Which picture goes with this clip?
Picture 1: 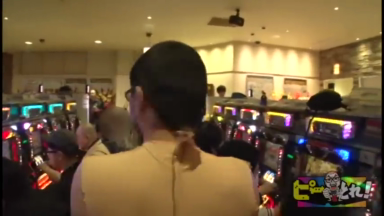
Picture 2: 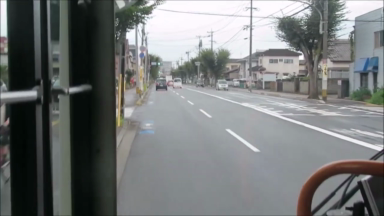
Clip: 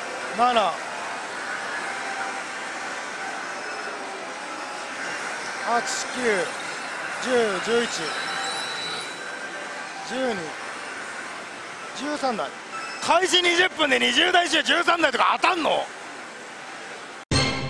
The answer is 1